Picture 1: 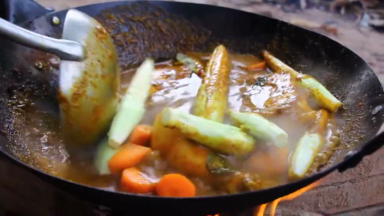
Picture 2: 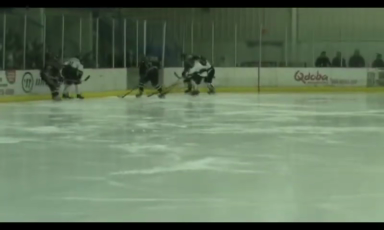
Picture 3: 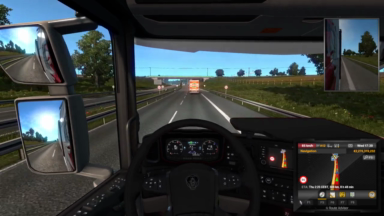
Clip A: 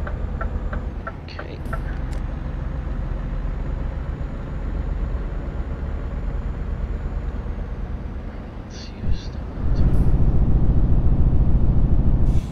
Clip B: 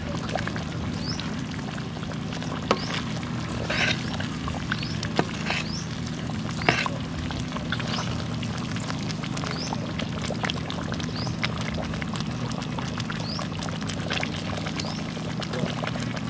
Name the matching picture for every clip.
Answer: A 3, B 1